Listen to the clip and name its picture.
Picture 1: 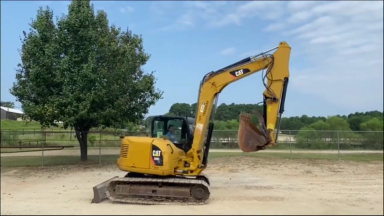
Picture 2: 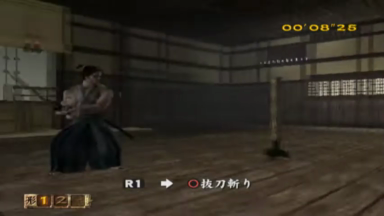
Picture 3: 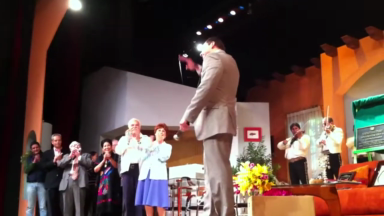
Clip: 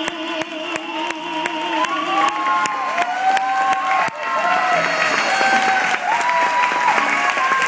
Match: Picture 3